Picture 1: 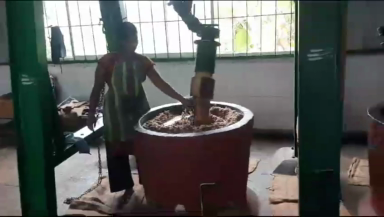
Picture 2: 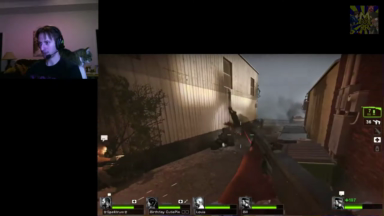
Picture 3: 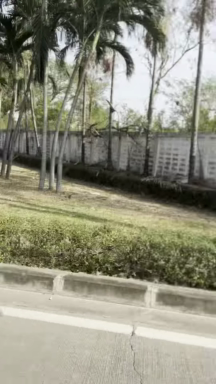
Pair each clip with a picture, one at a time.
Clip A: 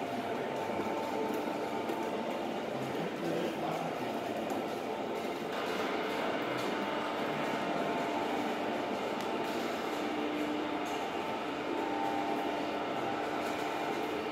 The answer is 1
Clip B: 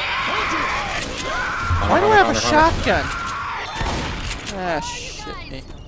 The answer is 2